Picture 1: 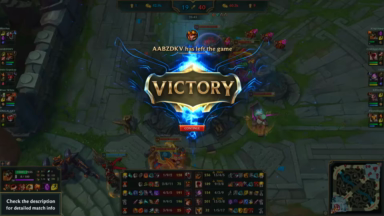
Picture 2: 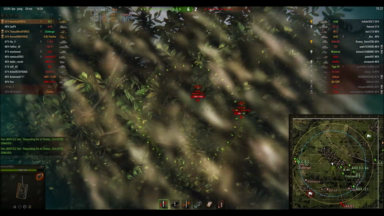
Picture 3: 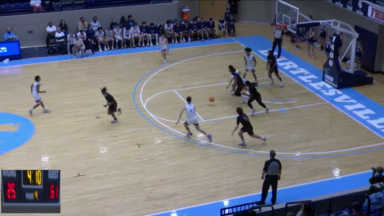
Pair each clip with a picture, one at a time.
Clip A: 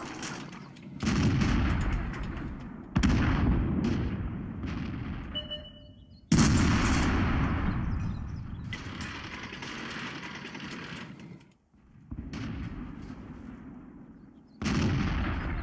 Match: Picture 2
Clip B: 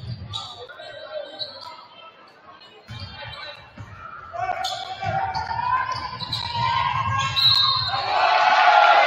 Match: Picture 3